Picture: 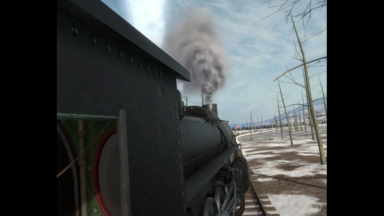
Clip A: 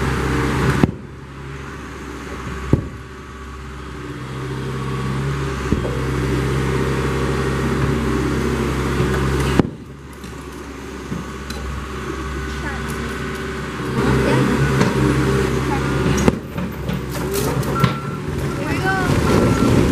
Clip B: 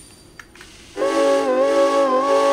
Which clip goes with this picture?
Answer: B